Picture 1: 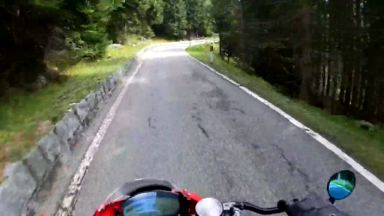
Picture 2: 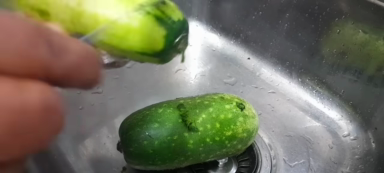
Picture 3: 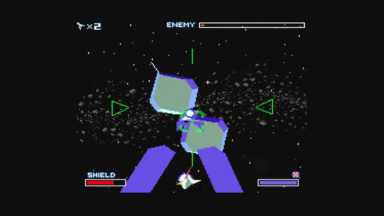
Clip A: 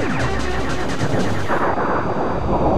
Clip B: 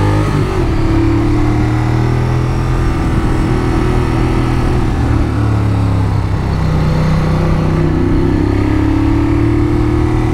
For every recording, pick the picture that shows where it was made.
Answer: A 3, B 1